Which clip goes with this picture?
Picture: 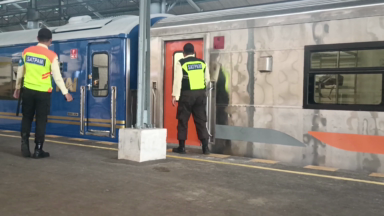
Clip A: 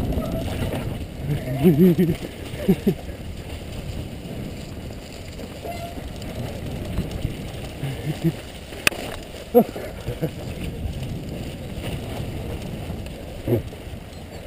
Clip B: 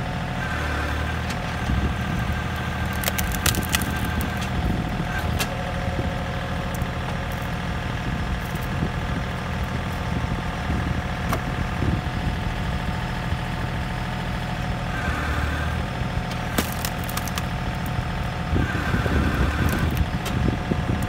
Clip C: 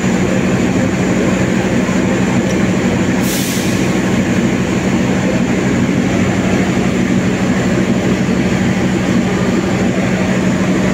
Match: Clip C